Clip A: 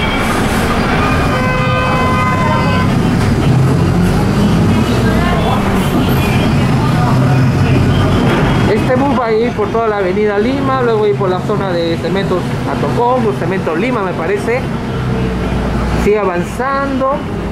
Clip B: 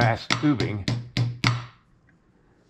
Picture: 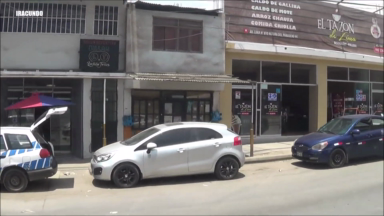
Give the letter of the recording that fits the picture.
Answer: A